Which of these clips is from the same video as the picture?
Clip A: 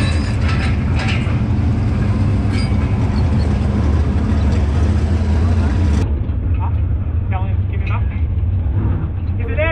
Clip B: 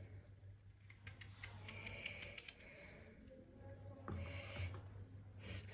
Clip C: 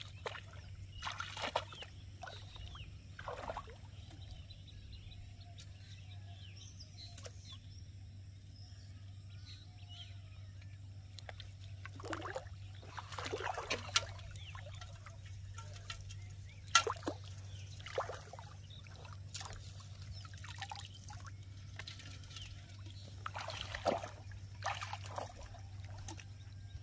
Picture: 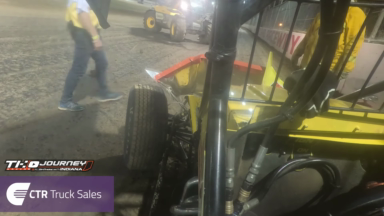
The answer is A